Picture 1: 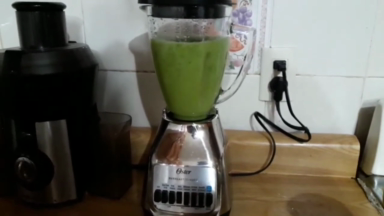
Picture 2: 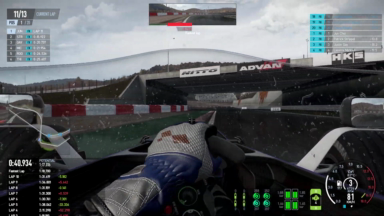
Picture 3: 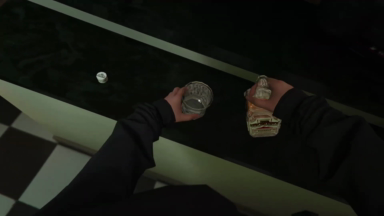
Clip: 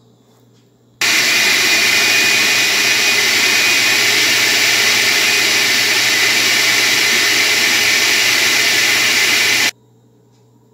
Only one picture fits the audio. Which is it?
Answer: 1